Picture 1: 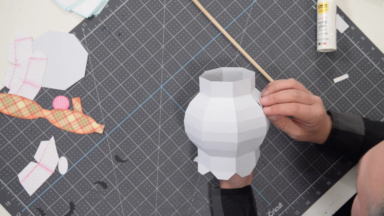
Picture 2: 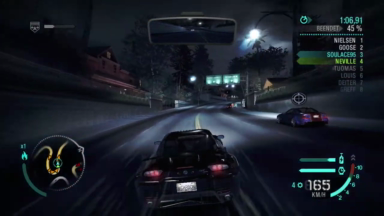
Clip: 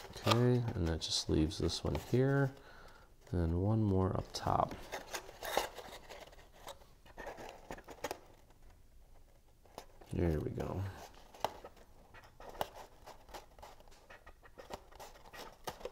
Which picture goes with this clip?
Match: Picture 1